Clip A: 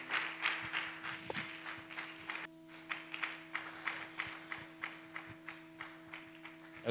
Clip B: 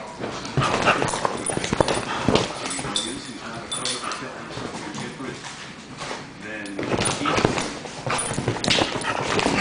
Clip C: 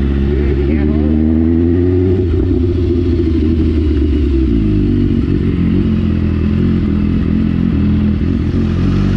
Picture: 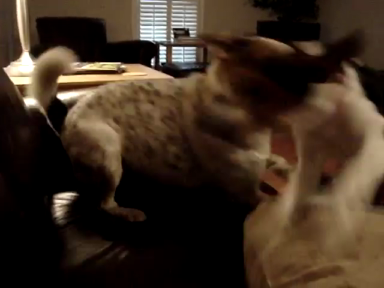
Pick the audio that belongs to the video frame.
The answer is B